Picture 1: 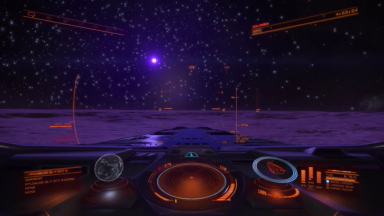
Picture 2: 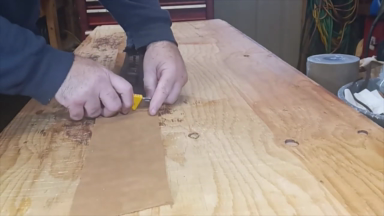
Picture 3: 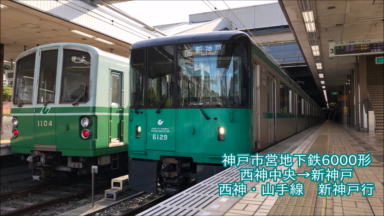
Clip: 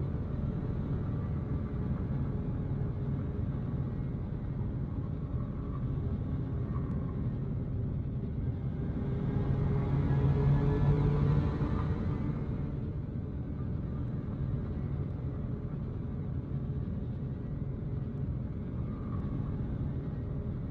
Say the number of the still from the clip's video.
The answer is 1